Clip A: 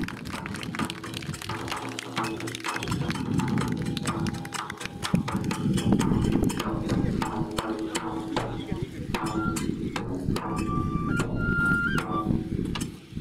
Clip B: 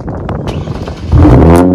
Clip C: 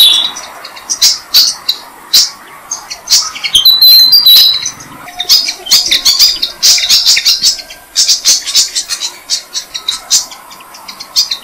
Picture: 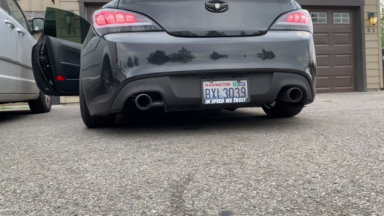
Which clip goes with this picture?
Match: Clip B